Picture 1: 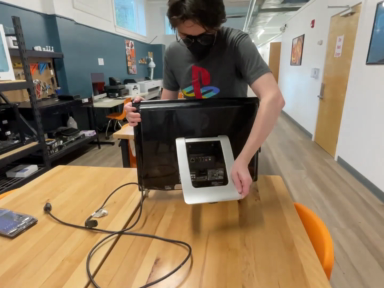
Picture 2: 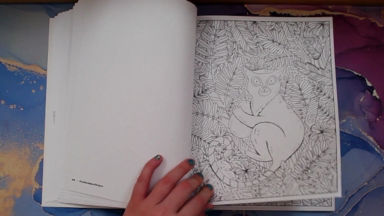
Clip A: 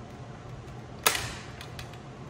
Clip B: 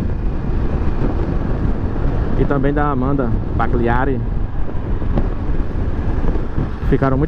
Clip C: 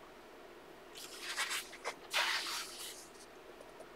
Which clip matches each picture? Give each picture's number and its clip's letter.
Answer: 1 A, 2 C